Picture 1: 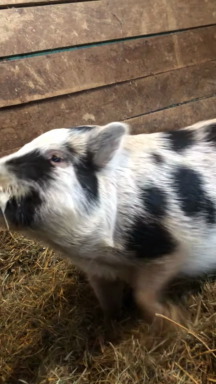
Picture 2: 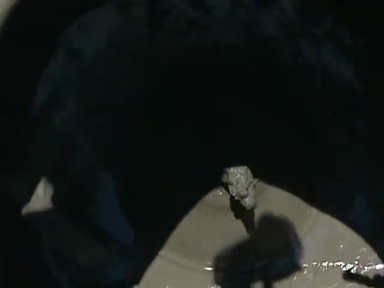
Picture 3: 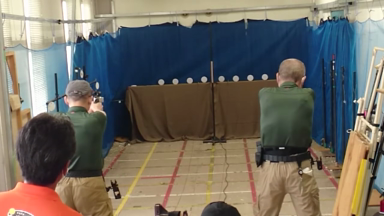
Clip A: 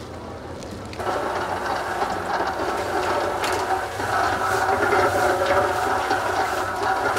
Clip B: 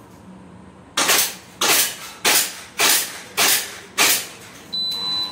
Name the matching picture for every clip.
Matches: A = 2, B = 3